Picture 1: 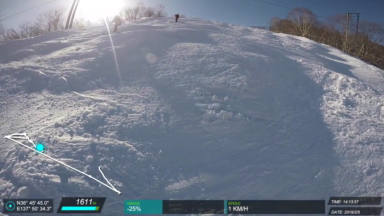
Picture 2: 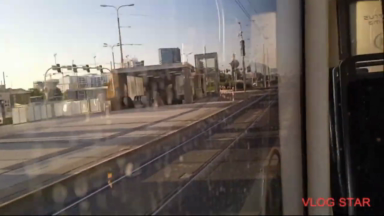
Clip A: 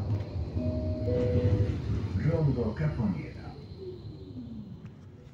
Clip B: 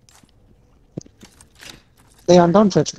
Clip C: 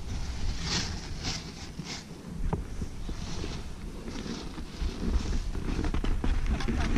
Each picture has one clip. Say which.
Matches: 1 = C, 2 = A